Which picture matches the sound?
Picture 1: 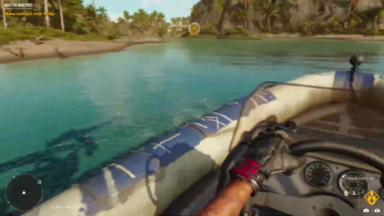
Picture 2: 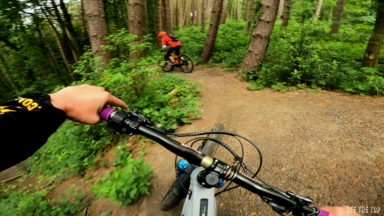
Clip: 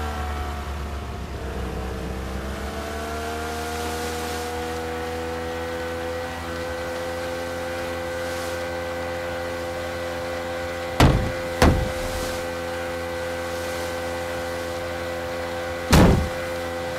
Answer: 1